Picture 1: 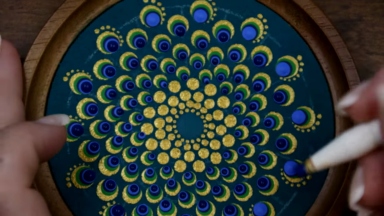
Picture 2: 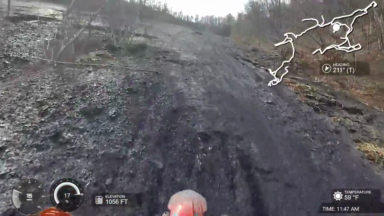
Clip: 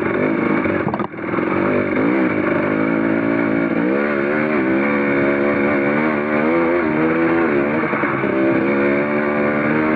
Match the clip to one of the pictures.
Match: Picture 2